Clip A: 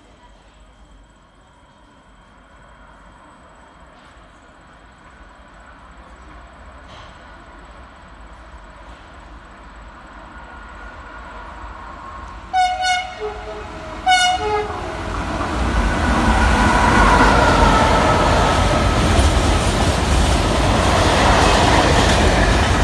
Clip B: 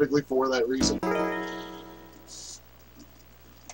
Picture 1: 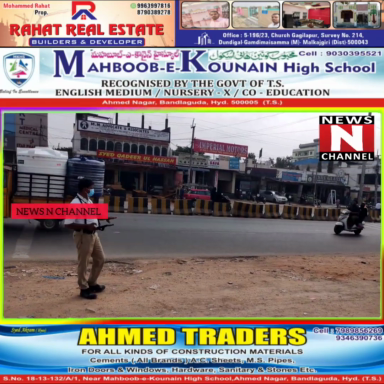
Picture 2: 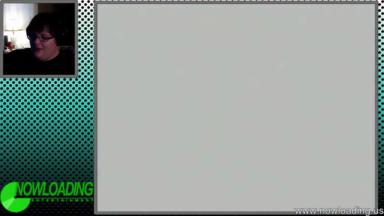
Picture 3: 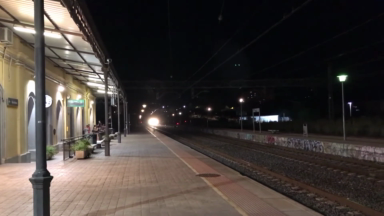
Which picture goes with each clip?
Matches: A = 3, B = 2